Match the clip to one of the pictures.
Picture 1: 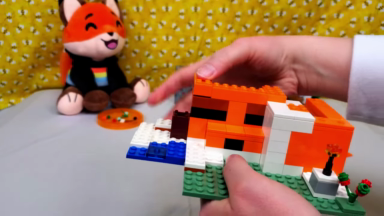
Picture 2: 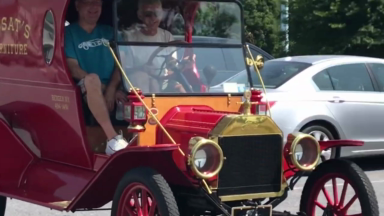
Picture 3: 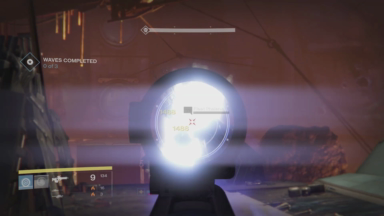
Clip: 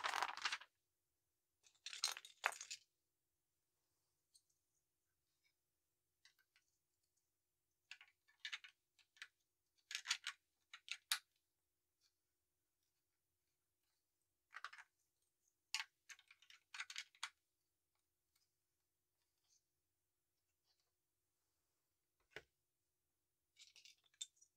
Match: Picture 1